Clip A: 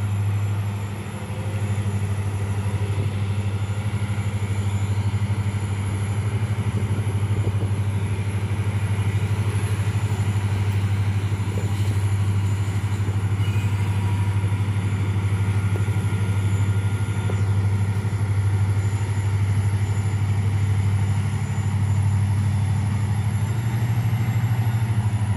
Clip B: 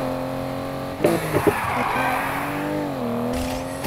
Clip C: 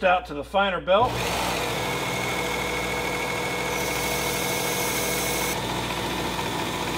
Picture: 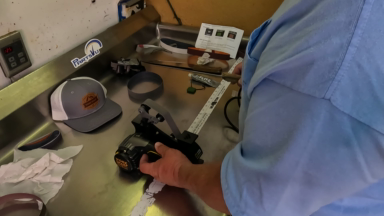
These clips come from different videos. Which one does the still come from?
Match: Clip C